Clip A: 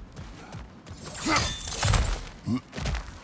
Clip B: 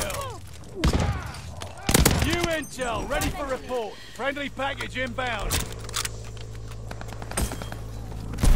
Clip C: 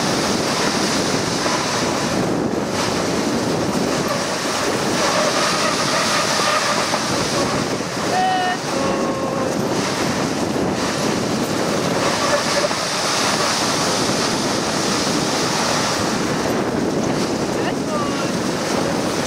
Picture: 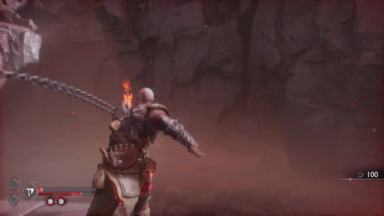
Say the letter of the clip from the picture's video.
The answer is A